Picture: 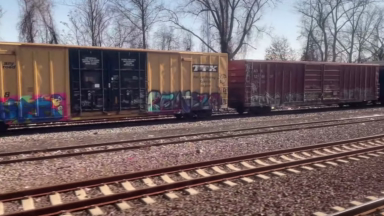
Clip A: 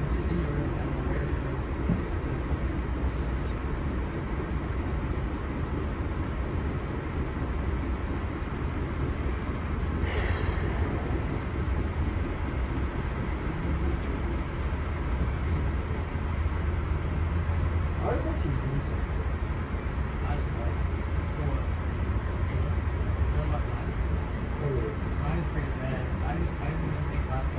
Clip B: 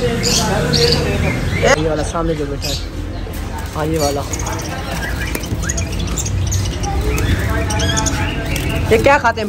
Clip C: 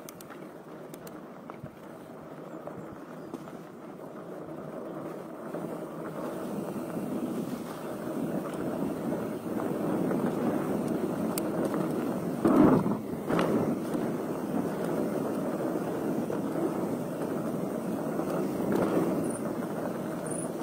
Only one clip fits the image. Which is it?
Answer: A